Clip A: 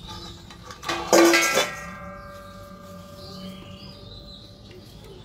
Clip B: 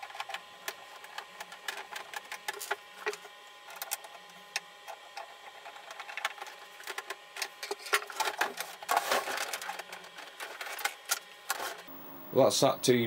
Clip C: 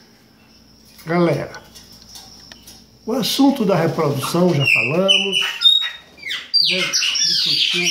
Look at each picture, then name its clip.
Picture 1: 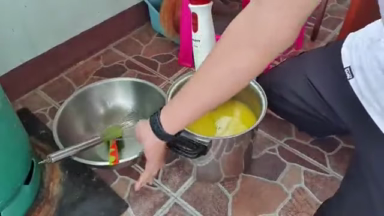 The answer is A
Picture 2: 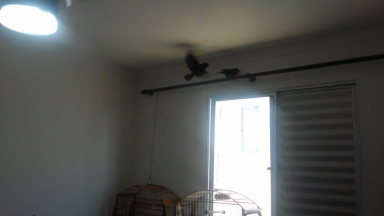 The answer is C